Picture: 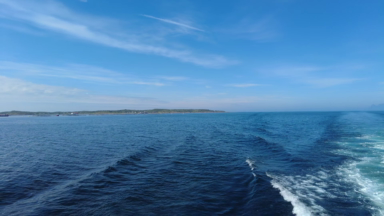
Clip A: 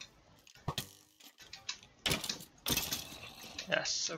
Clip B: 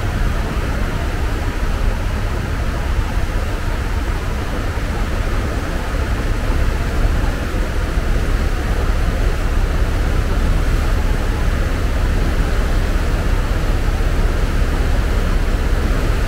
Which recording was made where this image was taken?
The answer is B